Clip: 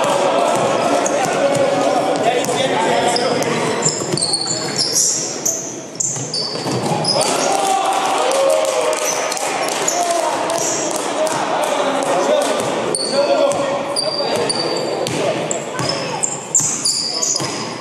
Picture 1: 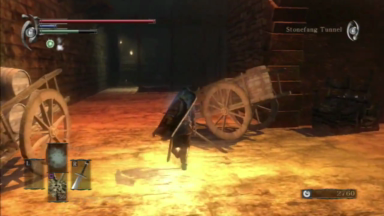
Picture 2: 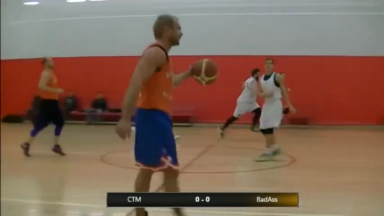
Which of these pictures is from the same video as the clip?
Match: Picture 2